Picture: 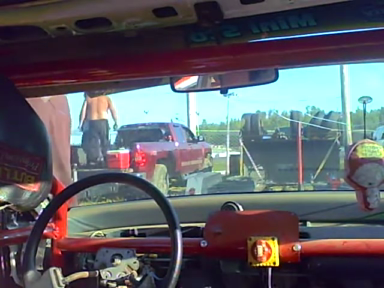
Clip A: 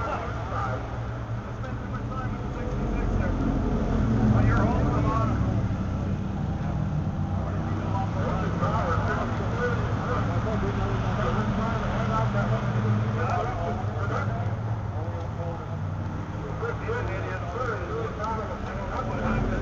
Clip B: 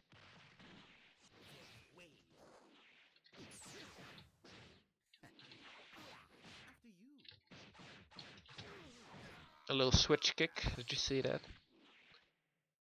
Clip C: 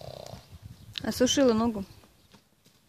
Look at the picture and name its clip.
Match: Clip A